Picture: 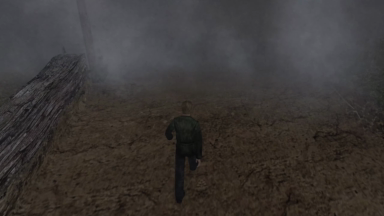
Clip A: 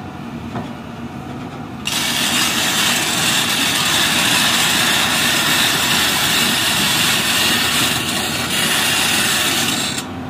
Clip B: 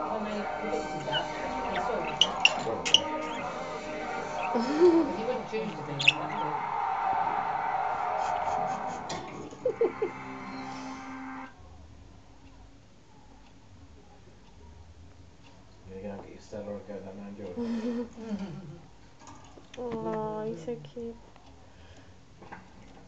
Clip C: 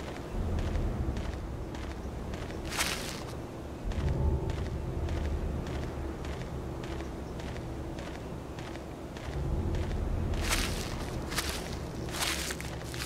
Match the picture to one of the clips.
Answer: C